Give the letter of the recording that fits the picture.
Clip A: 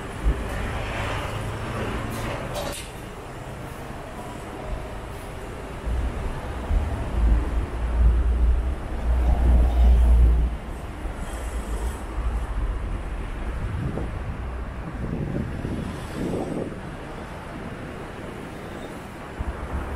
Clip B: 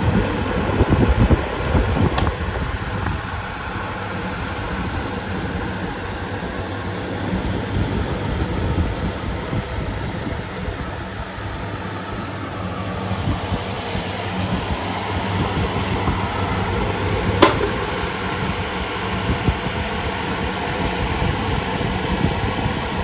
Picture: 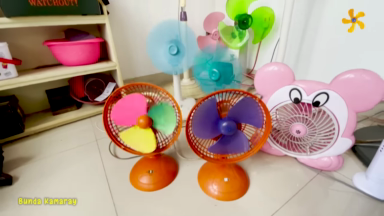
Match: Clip B